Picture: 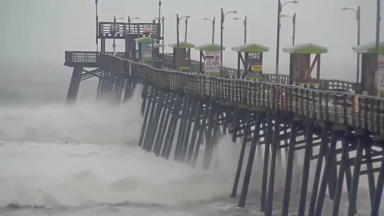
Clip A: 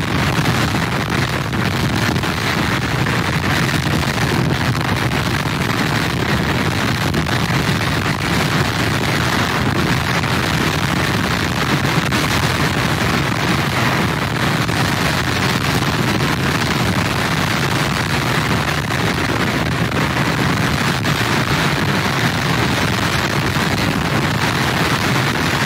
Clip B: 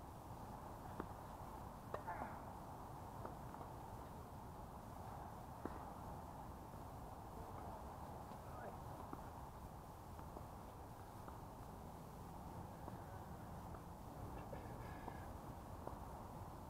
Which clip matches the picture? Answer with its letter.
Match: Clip A